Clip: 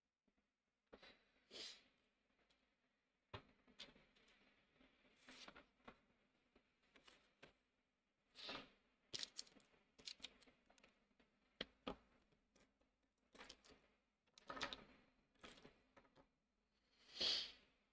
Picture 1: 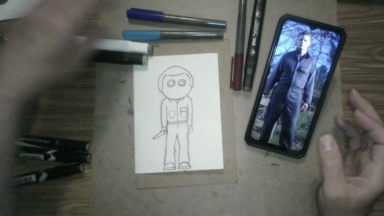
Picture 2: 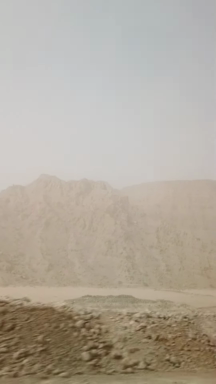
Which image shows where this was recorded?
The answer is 1